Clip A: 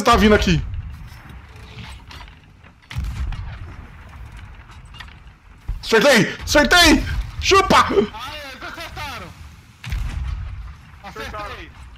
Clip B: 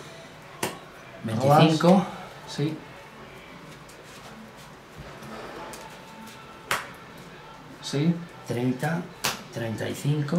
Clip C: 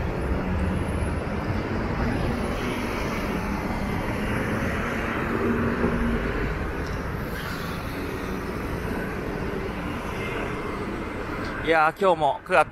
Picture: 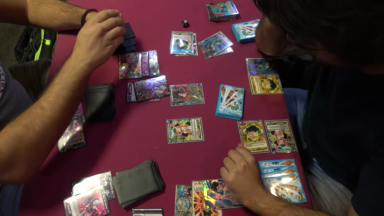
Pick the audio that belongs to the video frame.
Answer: B